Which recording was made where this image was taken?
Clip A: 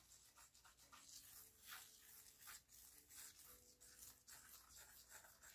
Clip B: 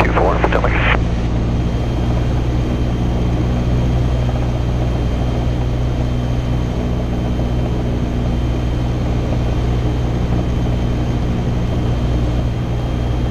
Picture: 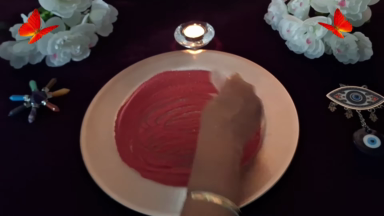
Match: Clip A